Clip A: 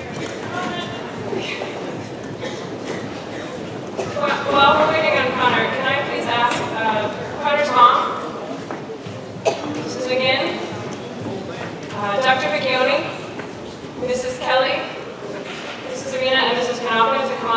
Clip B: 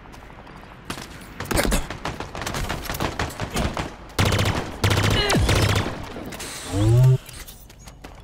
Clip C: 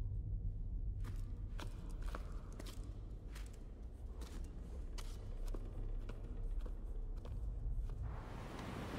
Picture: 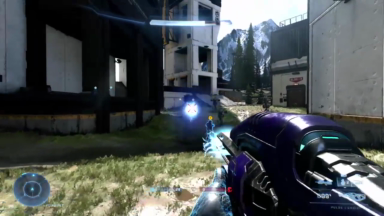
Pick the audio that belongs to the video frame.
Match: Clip B